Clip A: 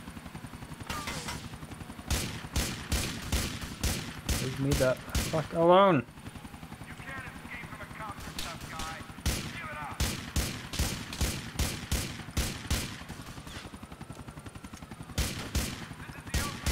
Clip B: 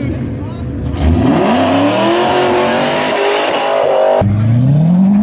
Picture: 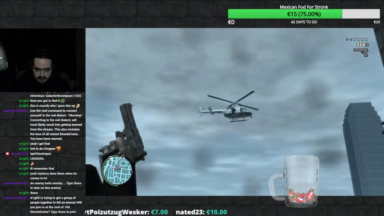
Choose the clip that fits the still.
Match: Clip A